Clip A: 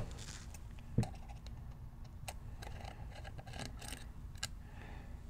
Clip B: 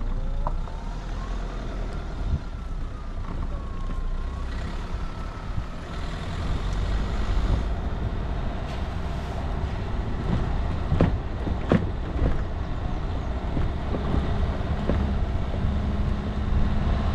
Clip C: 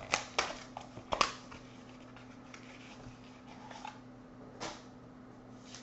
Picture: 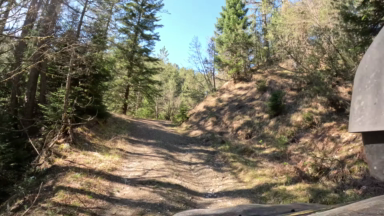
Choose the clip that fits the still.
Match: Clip B